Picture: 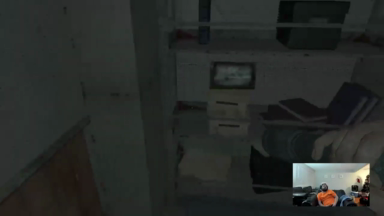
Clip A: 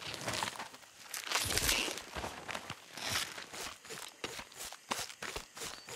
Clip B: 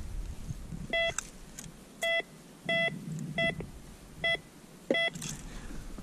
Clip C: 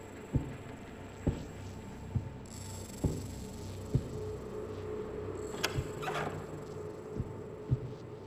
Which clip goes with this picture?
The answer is C